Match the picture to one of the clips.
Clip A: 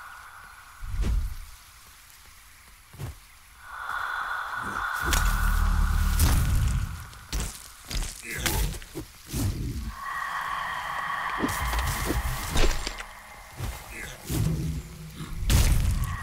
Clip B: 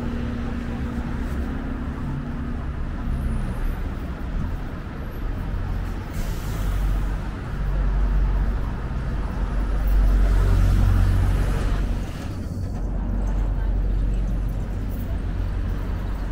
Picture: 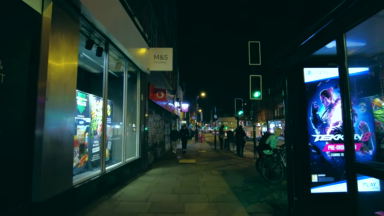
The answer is B